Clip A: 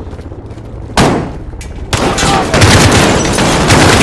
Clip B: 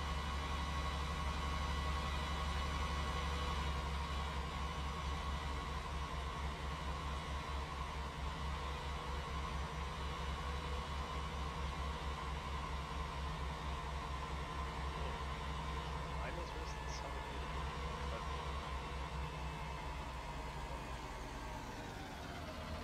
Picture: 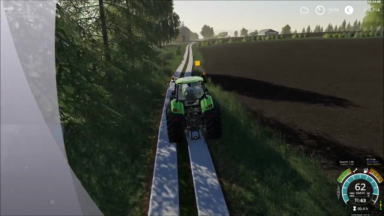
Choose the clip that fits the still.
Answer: B